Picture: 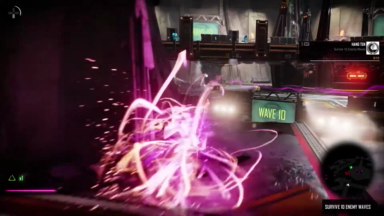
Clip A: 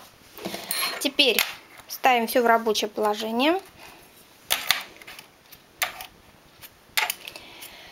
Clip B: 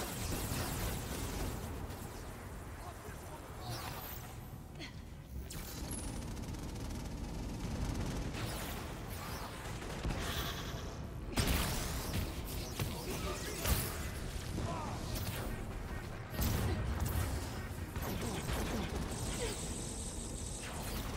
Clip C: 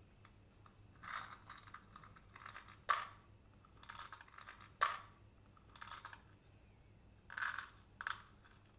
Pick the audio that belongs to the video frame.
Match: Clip B